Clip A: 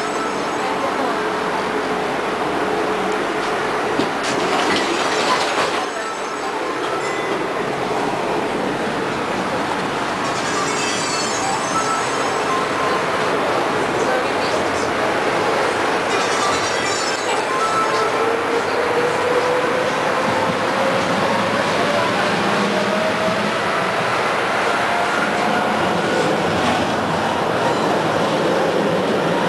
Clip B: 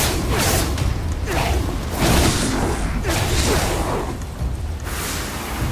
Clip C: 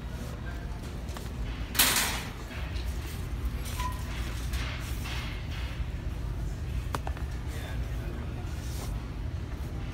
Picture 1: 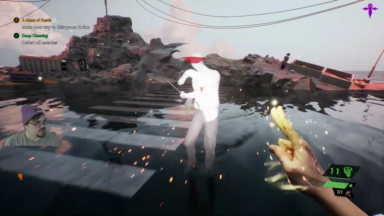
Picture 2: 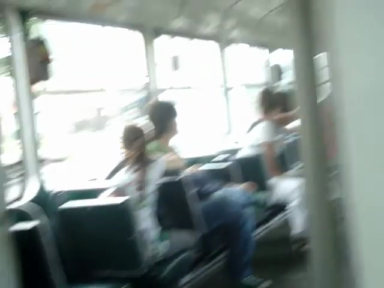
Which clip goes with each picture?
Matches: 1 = B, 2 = A